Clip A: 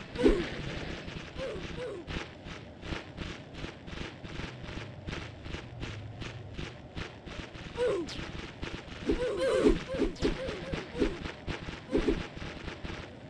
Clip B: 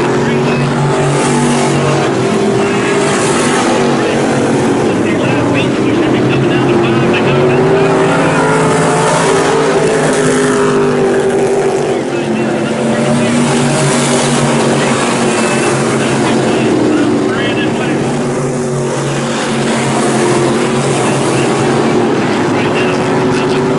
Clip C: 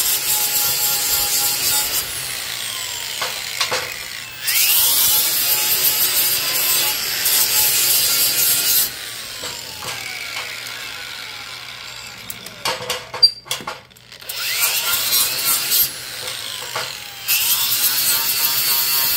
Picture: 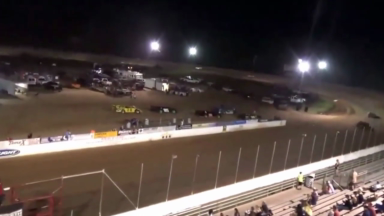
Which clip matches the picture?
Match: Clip B